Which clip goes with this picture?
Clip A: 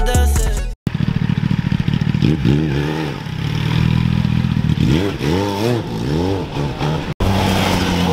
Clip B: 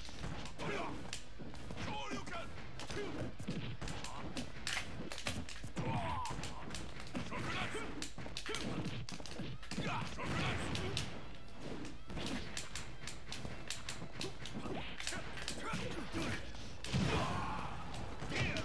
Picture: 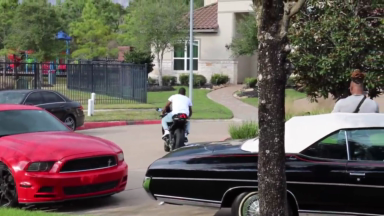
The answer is A